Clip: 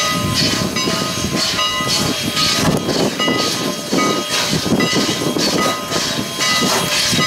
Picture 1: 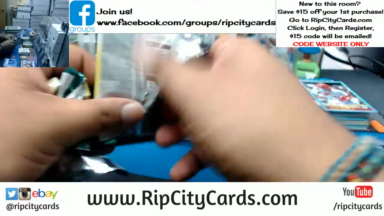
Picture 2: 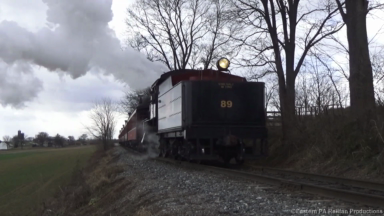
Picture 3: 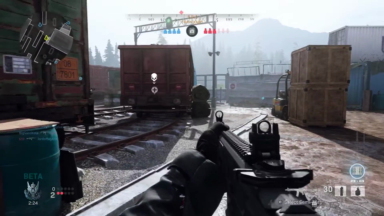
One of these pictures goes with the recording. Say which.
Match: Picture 2